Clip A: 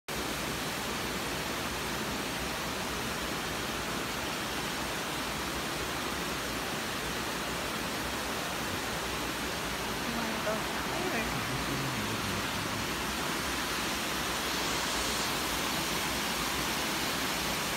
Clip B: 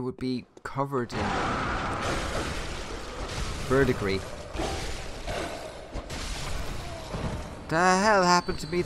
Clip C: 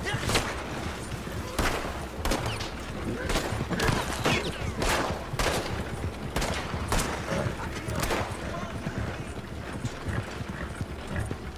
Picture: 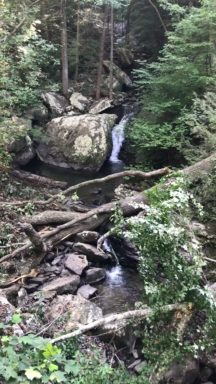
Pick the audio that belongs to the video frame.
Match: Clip A